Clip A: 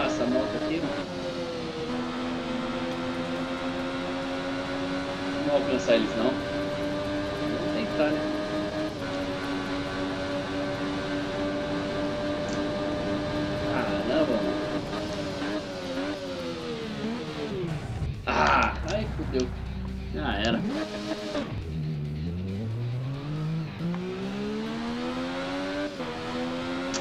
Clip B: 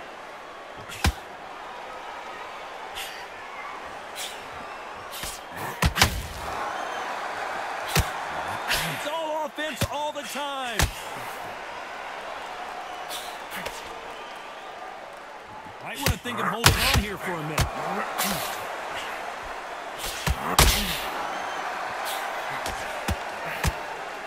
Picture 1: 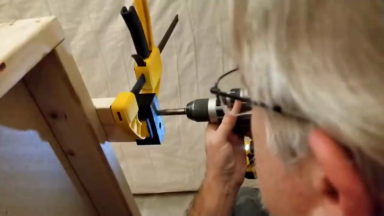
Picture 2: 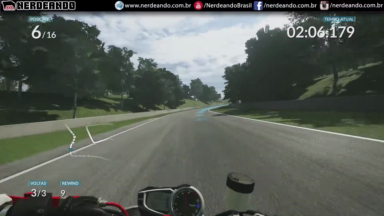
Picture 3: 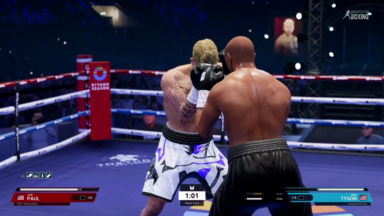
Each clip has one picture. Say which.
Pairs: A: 2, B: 3